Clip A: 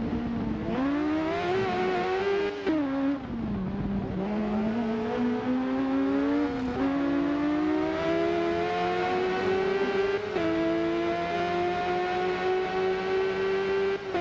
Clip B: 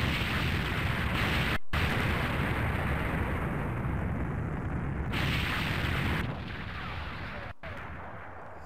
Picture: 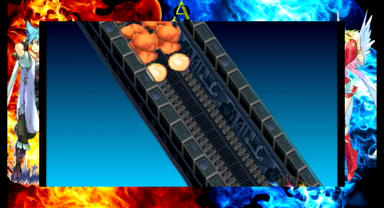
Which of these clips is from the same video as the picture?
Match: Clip B